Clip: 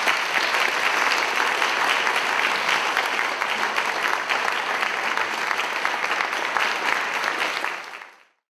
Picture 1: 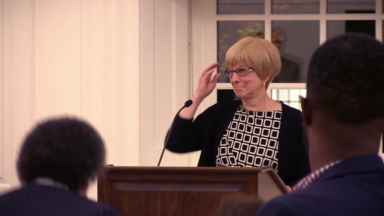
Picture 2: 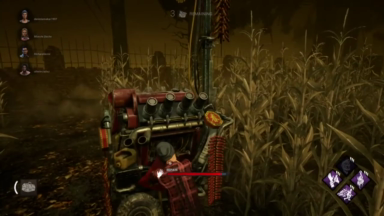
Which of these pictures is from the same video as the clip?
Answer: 1